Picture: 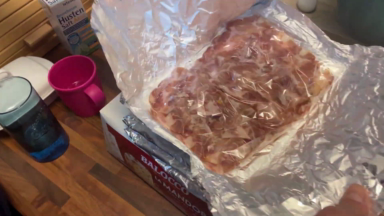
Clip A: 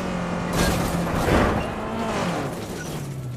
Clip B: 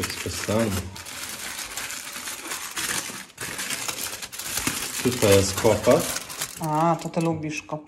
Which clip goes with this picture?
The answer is B